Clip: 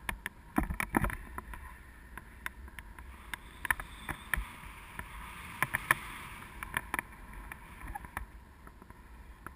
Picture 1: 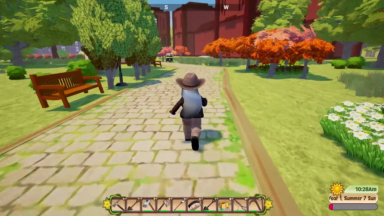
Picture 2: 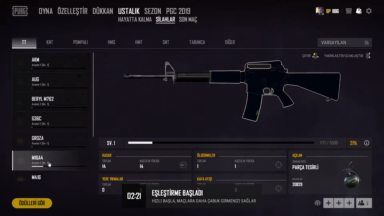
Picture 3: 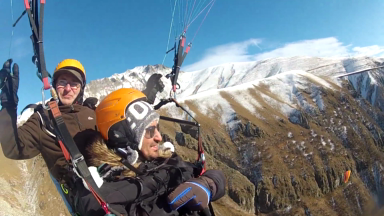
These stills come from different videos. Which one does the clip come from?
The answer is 3